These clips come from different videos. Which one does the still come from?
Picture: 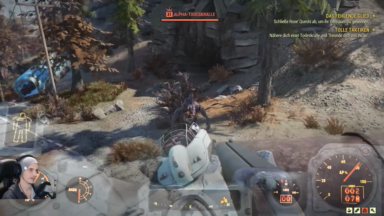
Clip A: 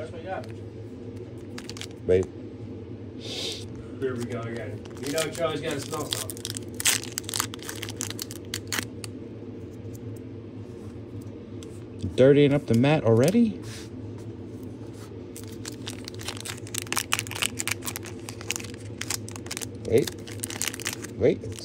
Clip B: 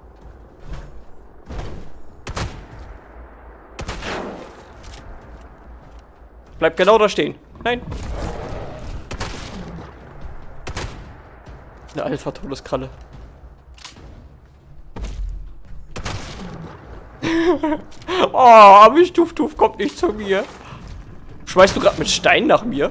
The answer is B